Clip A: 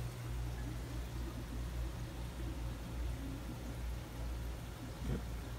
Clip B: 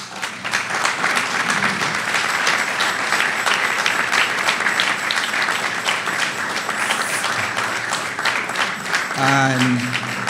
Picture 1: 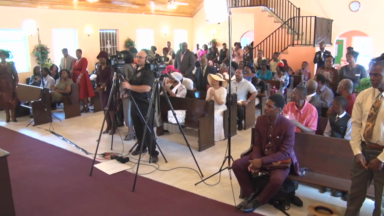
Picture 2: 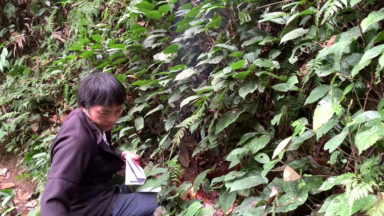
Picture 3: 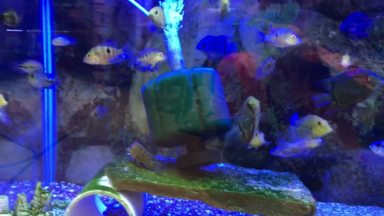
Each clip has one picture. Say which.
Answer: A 3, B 1